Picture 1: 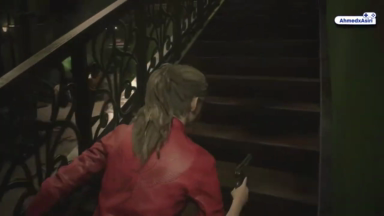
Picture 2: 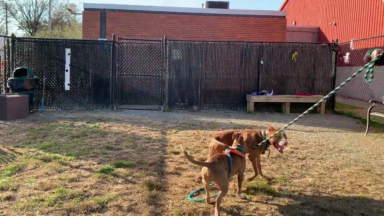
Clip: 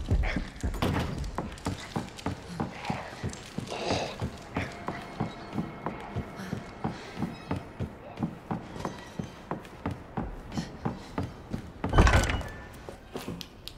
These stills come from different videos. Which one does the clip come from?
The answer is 1